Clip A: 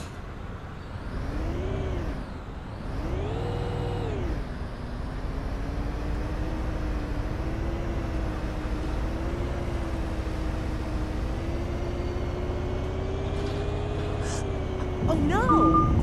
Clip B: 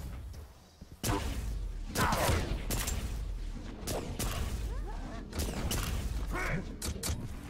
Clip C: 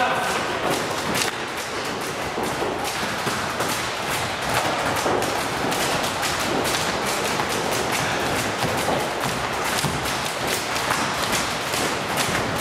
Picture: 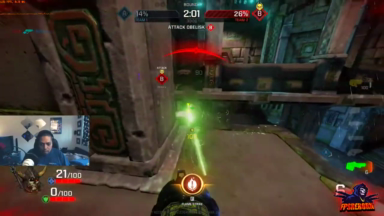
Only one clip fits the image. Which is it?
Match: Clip B